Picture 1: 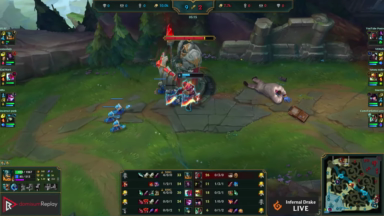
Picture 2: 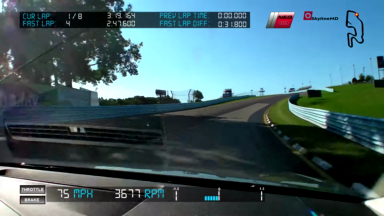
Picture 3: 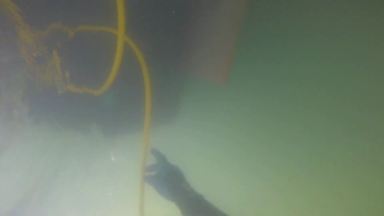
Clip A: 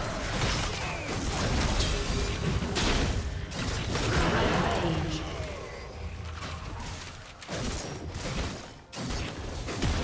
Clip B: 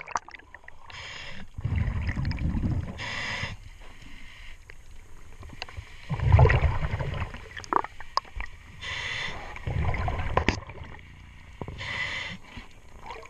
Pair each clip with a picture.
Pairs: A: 1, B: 3